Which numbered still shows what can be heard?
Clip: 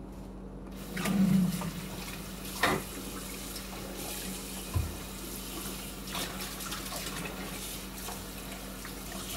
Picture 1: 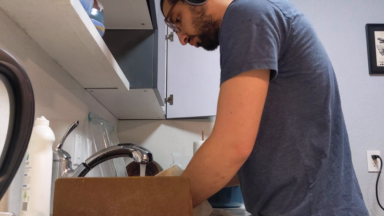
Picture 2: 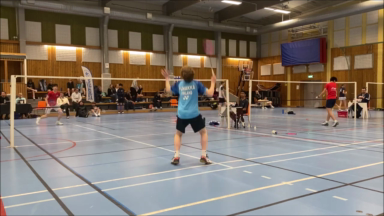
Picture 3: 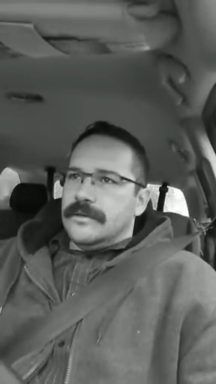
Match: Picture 1